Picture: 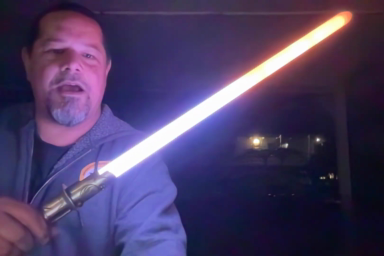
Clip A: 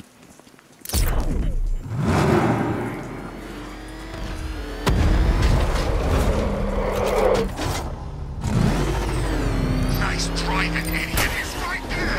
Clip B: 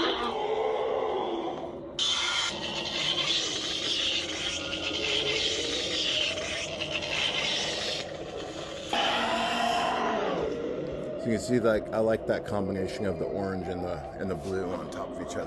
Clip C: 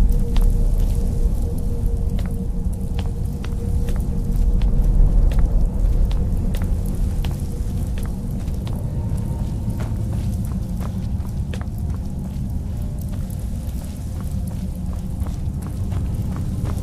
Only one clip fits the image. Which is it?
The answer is B